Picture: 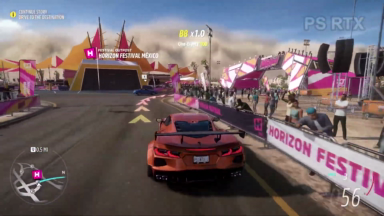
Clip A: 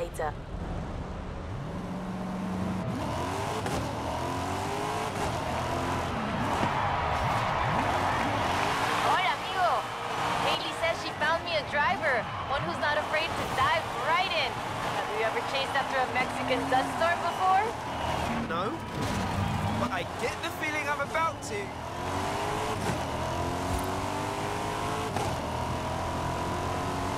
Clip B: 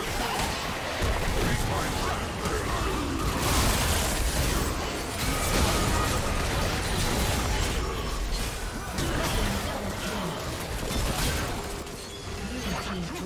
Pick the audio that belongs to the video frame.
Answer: A